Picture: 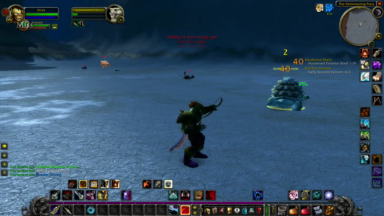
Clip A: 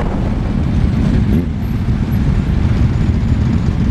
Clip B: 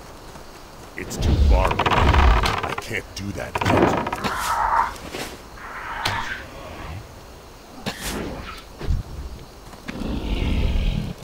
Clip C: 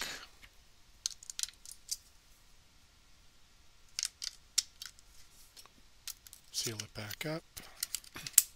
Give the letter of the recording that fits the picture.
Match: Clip B